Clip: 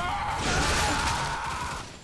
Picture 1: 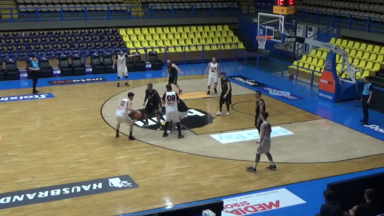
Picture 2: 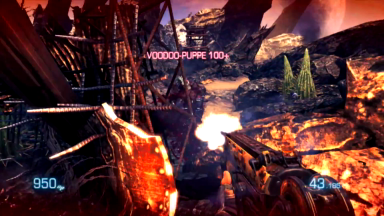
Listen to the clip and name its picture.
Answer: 2